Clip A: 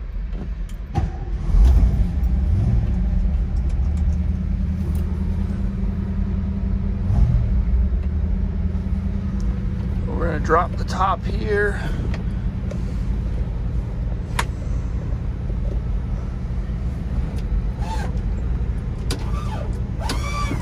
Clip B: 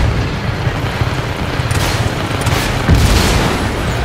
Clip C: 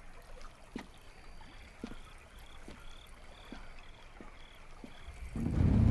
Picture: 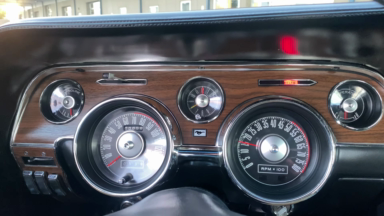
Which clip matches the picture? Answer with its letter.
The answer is A